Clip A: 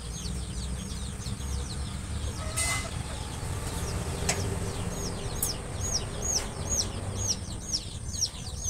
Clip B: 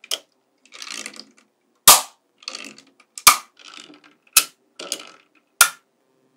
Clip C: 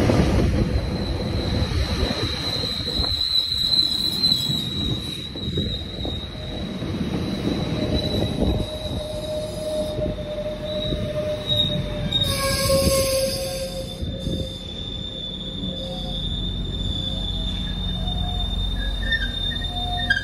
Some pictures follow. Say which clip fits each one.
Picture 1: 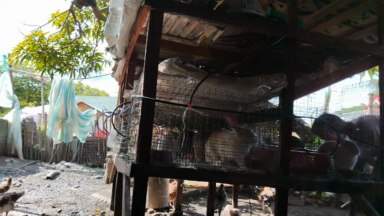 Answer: A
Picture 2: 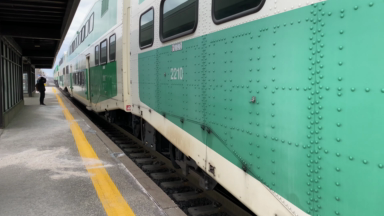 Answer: C